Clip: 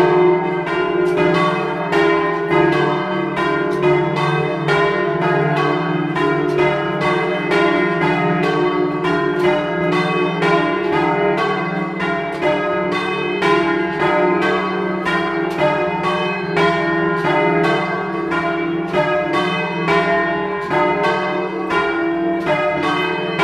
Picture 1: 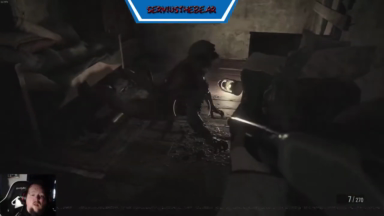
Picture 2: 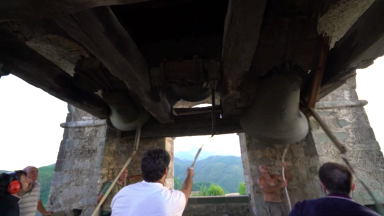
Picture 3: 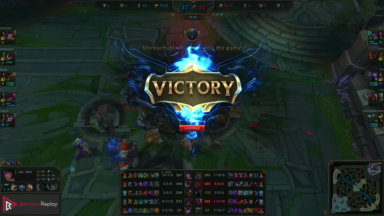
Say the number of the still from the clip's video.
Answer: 2